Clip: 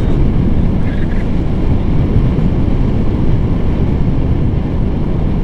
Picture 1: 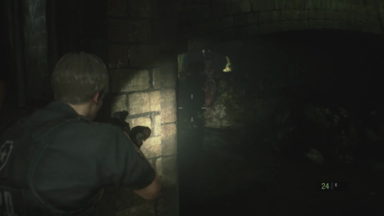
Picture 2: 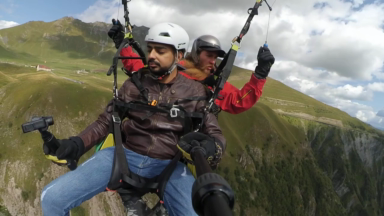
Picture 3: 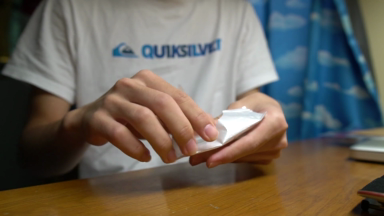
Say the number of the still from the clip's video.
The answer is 2